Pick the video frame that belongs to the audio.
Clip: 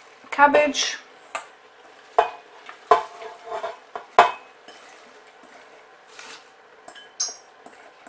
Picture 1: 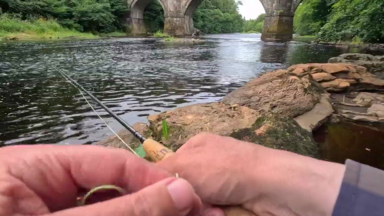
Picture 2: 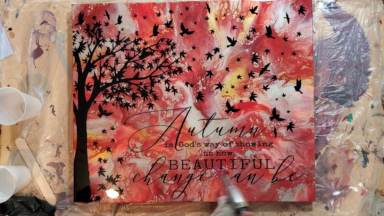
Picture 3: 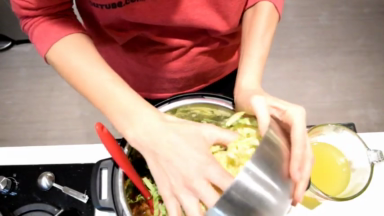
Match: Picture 3